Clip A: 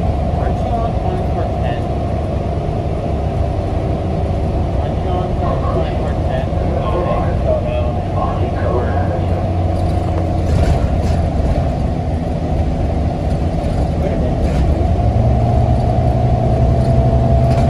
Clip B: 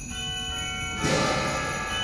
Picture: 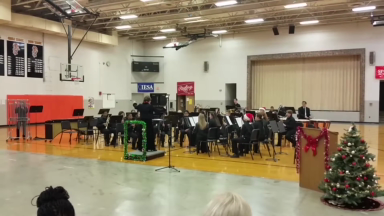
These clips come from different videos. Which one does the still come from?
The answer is B